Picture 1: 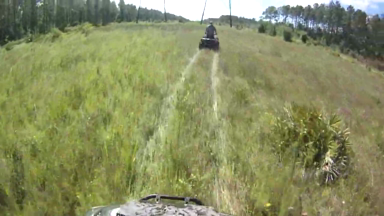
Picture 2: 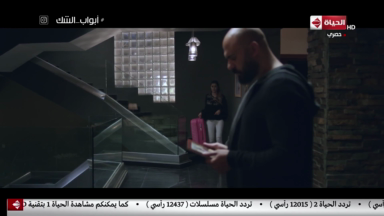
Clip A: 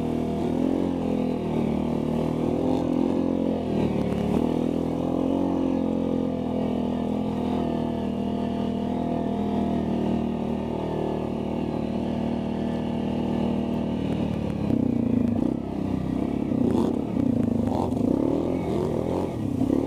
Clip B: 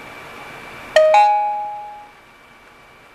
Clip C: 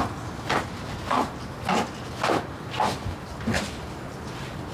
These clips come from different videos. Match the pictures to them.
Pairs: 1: A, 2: C